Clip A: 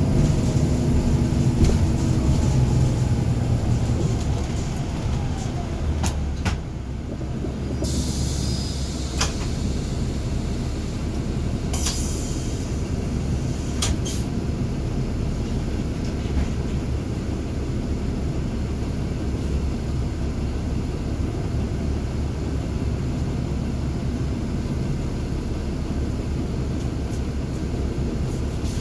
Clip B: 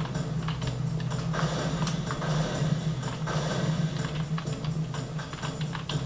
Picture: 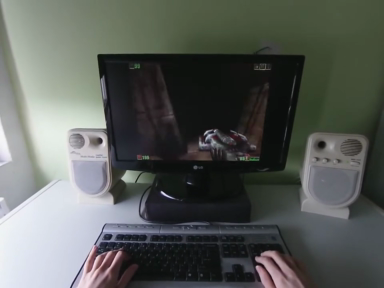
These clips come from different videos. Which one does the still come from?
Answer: B